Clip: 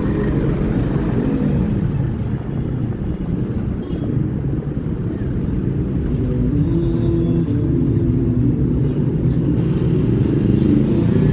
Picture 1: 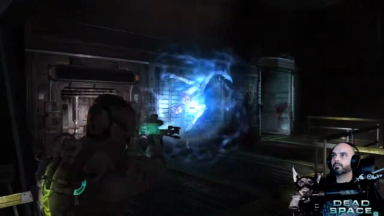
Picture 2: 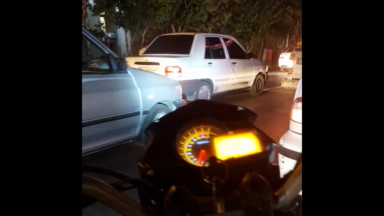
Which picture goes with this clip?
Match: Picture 2